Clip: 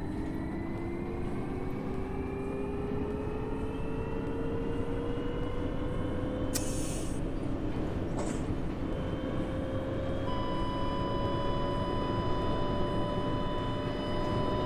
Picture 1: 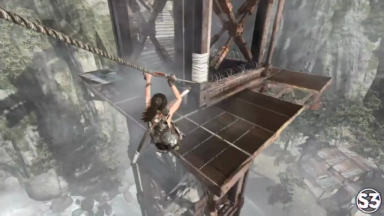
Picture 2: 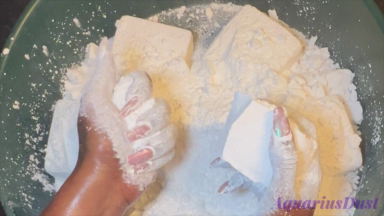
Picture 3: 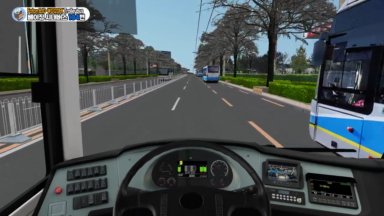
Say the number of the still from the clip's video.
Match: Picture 3